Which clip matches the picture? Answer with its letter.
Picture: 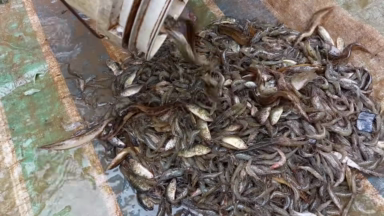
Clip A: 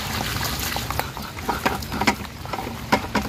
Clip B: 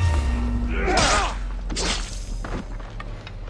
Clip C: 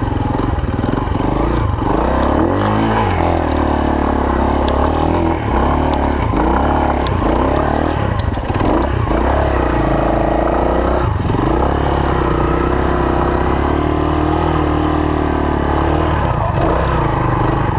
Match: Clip A